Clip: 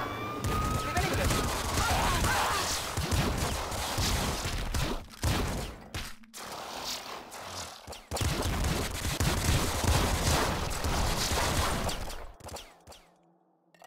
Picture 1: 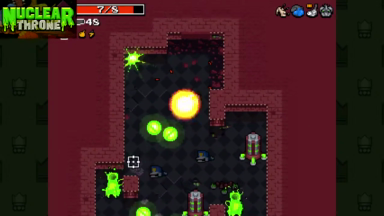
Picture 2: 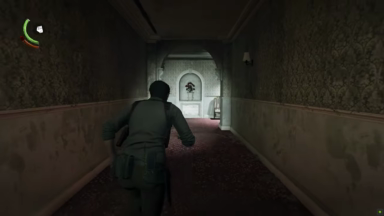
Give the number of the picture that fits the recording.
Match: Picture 1